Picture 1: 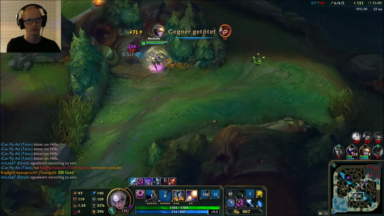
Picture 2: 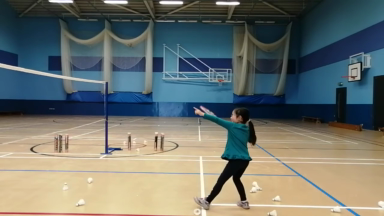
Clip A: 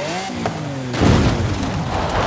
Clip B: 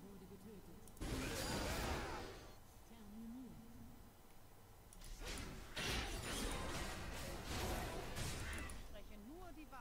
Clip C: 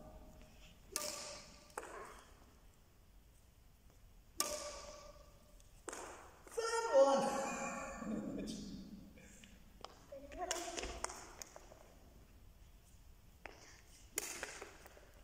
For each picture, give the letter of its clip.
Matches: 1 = B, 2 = C